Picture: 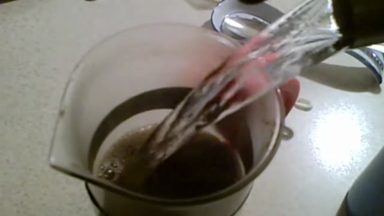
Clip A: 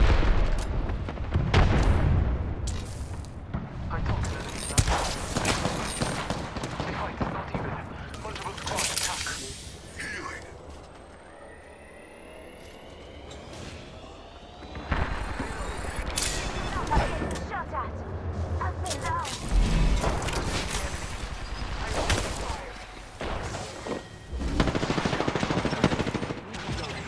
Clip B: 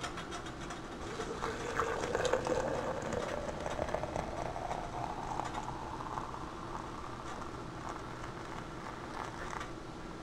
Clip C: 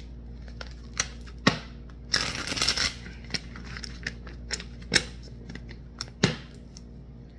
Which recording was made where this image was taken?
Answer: B